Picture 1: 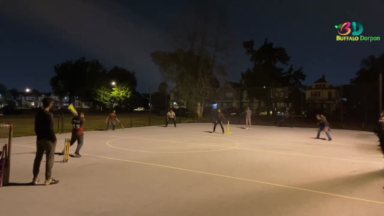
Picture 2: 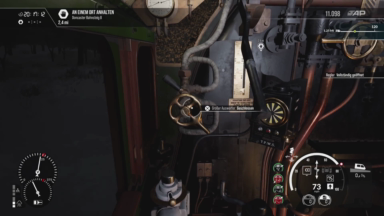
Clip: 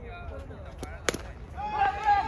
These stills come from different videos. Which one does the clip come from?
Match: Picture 1